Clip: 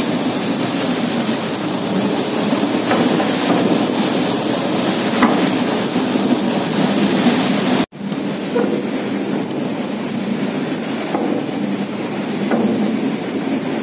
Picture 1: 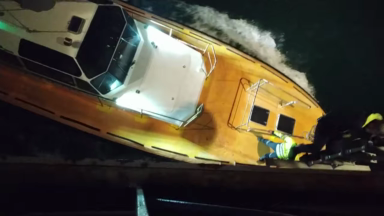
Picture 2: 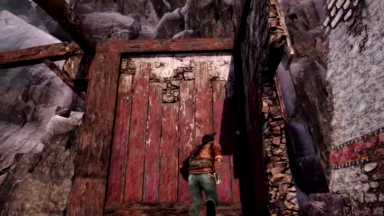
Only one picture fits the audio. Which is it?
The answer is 1